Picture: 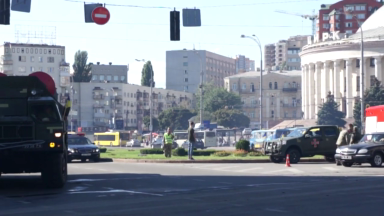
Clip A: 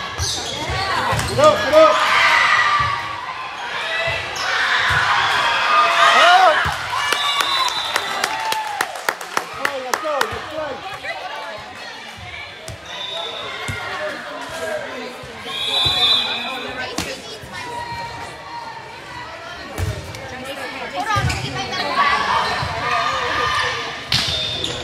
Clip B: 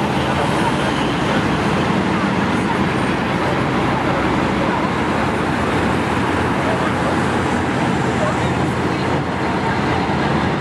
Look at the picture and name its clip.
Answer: B